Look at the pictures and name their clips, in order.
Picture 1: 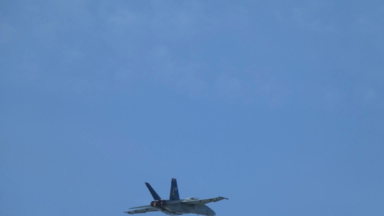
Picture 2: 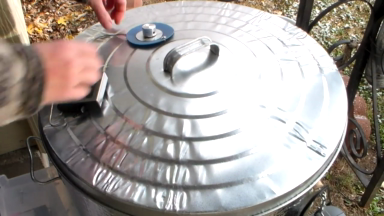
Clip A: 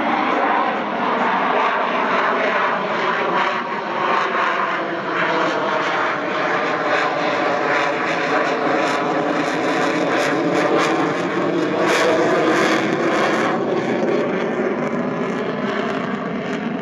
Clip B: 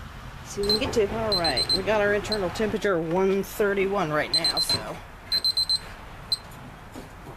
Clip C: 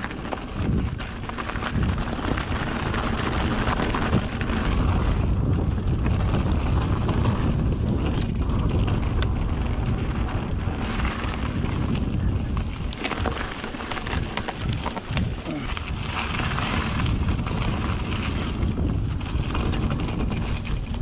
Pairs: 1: A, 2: B